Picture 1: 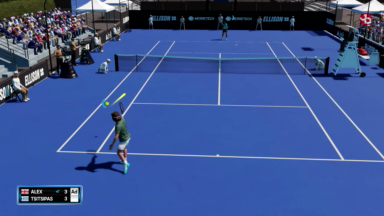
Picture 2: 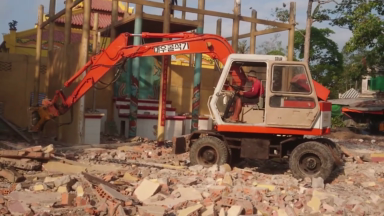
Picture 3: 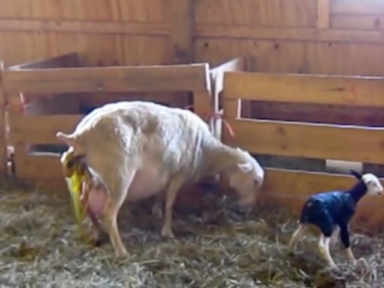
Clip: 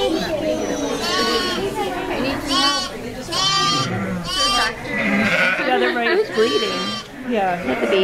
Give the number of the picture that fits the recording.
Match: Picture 3